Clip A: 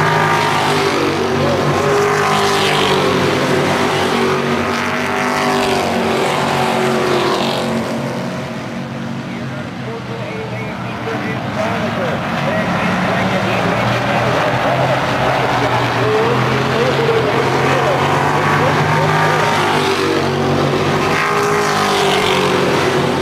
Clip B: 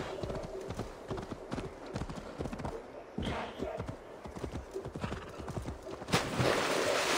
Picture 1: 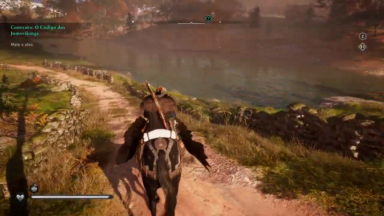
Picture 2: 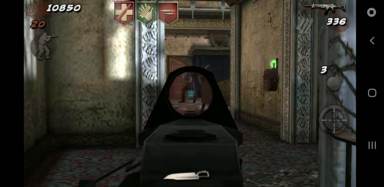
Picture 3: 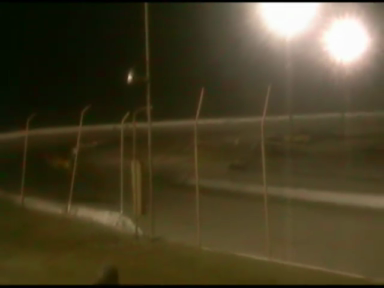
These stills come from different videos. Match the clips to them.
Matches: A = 3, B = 1